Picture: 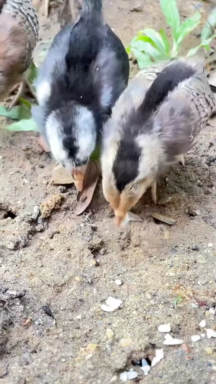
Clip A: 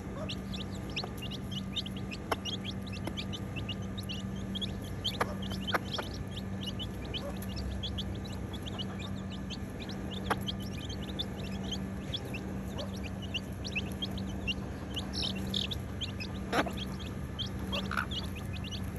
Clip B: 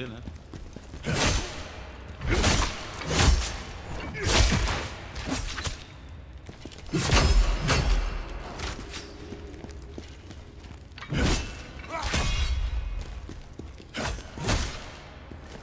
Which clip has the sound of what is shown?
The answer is A